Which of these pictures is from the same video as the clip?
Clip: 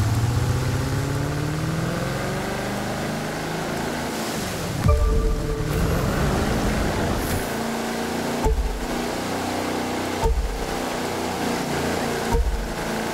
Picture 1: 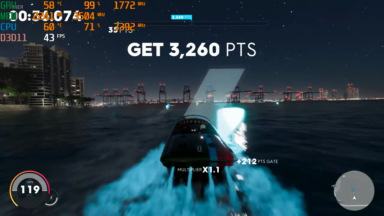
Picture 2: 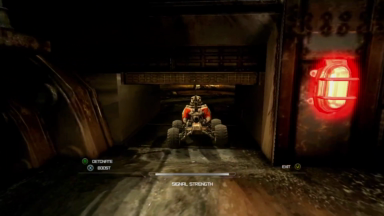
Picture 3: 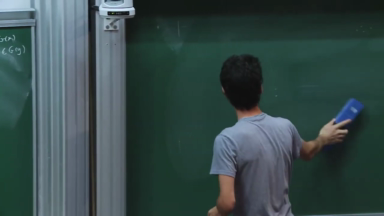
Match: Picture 1